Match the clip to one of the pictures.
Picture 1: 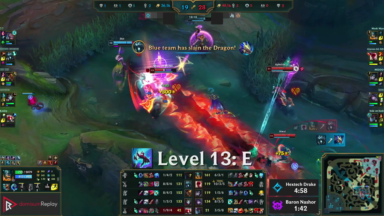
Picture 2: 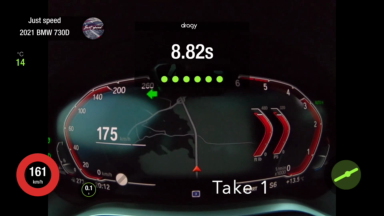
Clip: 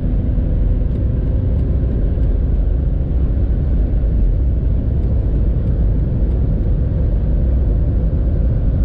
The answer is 2